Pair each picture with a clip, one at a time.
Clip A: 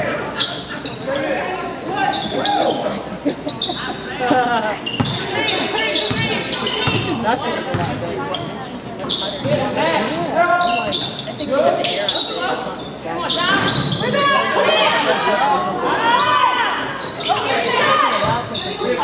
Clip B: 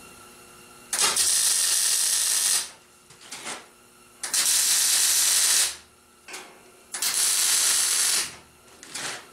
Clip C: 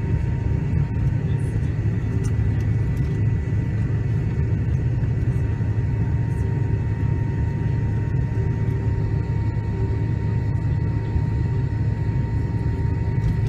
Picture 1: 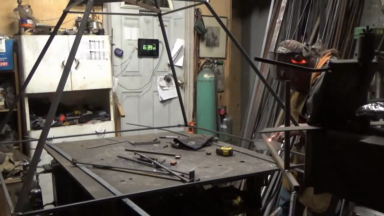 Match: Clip B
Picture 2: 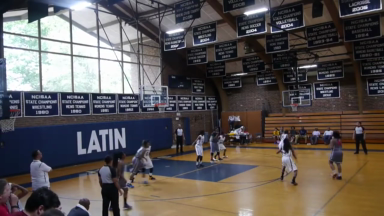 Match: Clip A